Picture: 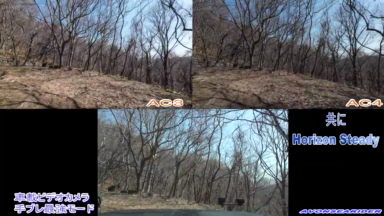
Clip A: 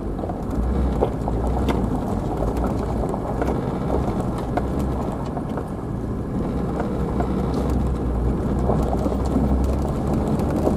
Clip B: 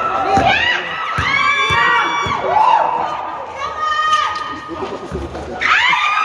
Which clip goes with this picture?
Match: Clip A